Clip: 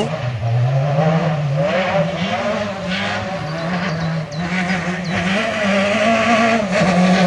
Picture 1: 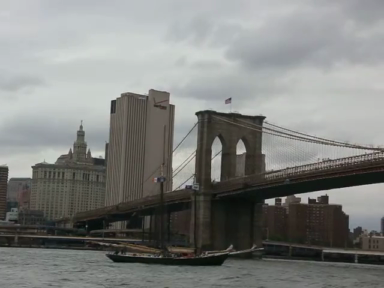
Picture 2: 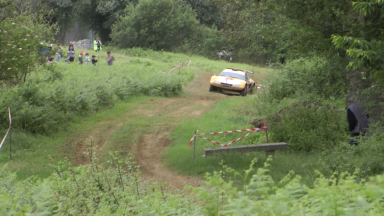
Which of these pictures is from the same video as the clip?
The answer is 2